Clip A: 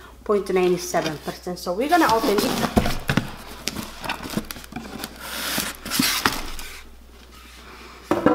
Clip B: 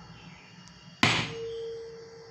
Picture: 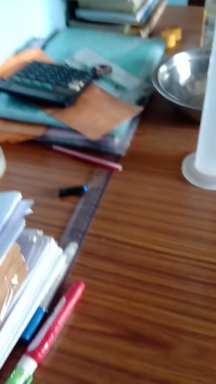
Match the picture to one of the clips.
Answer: B